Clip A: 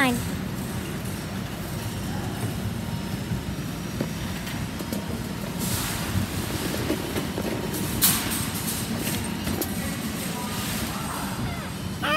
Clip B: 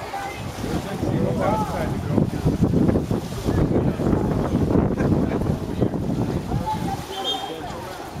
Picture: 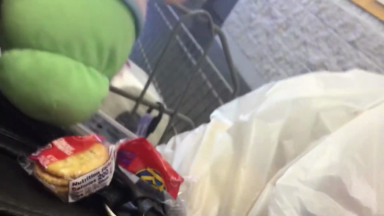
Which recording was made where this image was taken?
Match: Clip A